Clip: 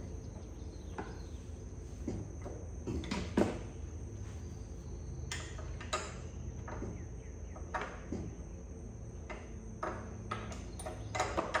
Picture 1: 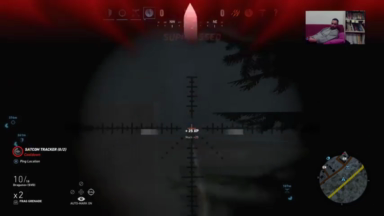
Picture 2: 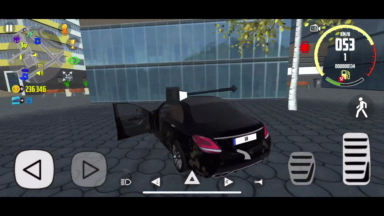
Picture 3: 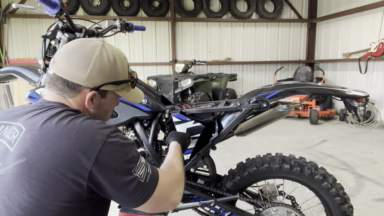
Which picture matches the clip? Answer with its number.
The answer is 3